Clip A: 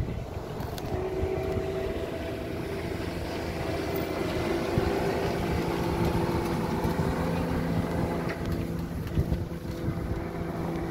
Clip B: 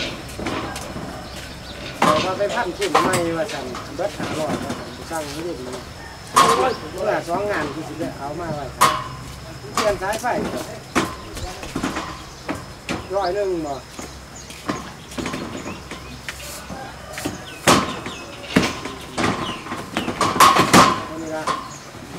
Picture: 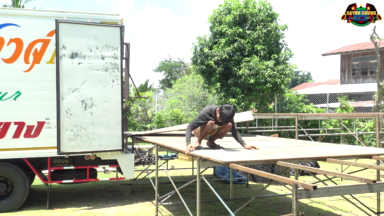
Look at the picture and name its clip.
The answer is B